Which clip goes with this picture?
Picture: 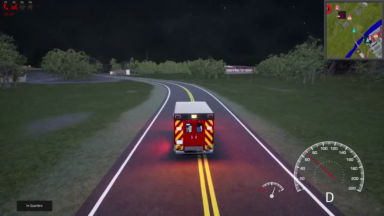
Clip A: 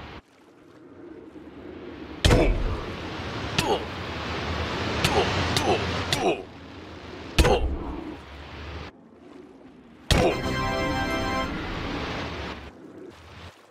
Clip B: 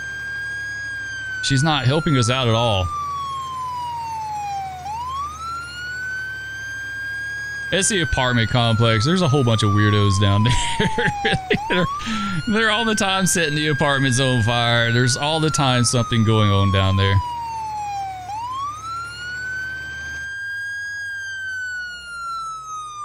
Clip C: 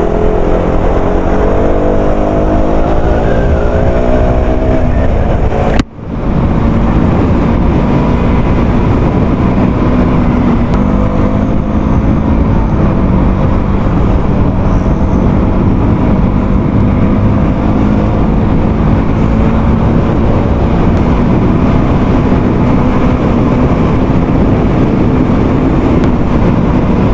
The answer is B